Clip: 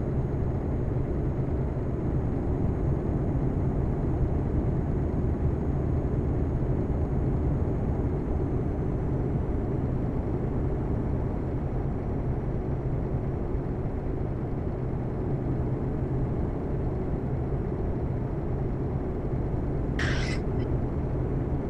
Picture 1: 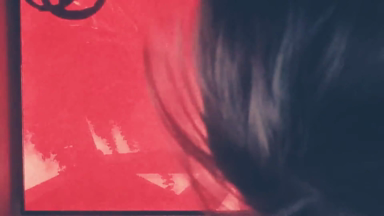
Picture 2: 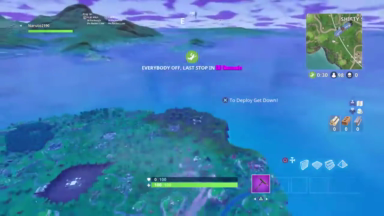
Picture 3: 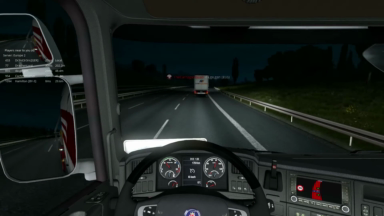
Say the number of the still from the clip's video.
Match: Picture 3